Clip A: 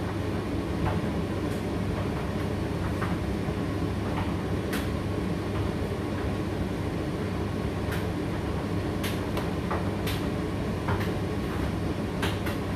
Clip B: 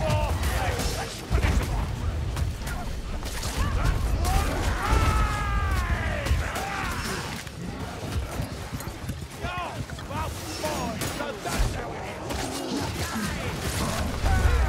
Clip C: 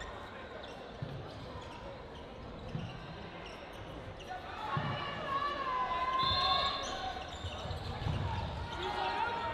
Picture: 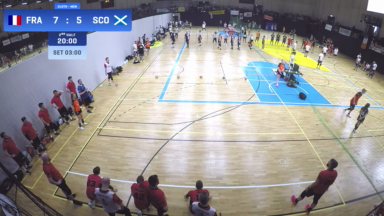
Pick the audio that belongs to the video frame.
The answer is C